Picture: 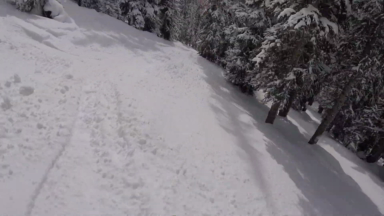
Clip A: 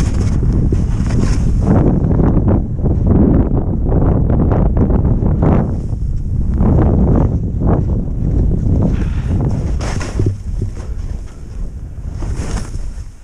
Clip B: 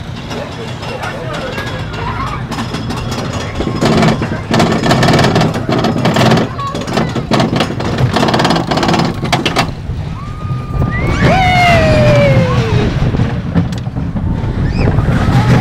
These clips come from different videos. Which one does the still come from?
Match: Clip A